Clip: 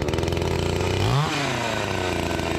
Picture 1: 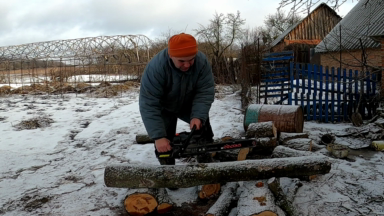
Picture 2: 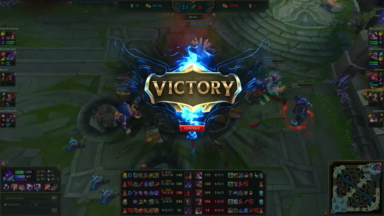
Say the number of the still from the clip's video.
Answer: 1